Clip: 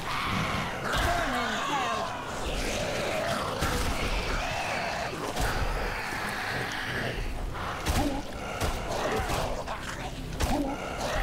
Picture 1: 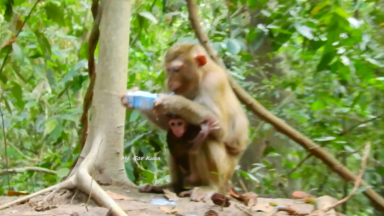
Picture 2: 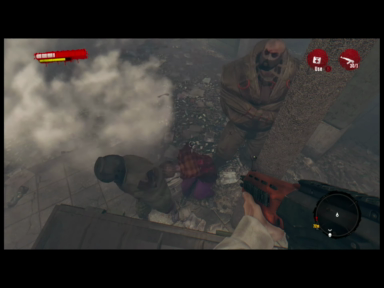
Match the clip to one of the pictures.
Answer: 2